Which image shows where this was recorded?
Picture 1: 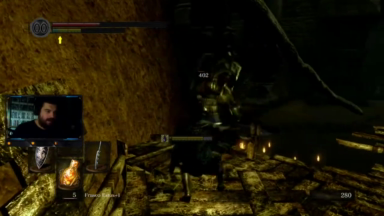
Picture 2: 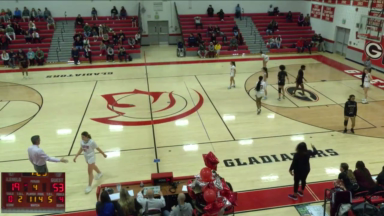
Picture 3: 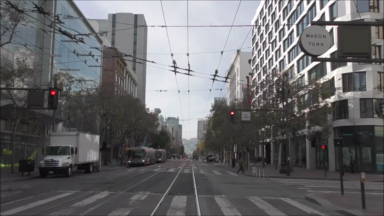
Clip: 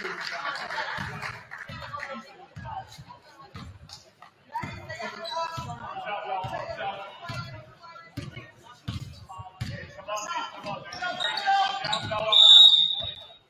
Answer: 2